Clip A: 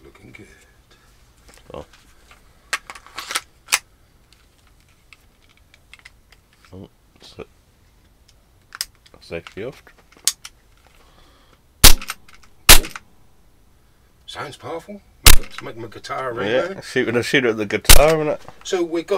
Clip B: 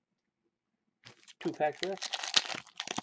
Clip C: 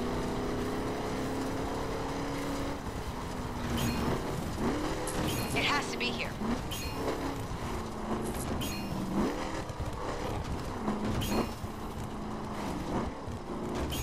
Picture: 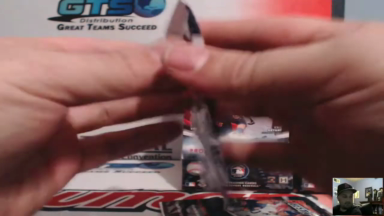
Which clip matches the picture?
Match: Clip B